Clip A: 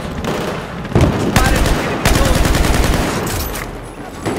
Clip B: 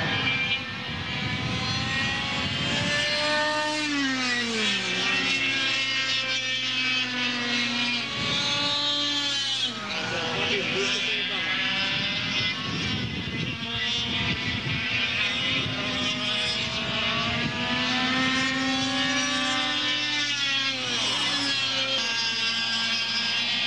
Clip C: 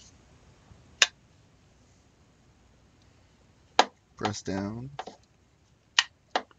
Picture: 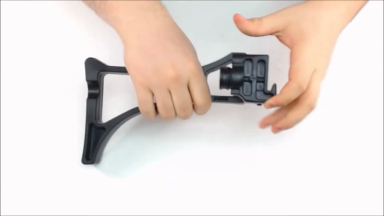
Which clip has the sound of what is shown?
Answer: C